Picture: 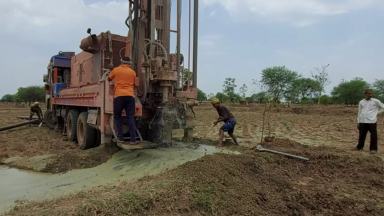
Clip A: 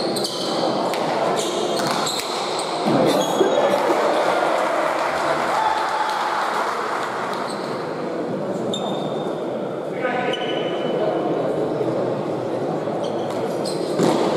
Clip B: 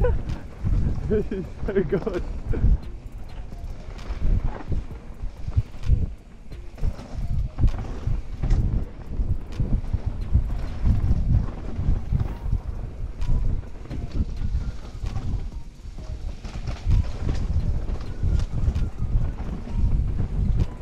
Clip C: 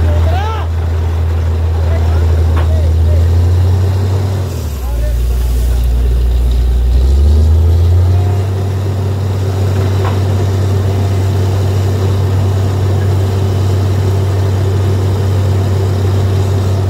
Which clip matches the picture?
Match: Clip C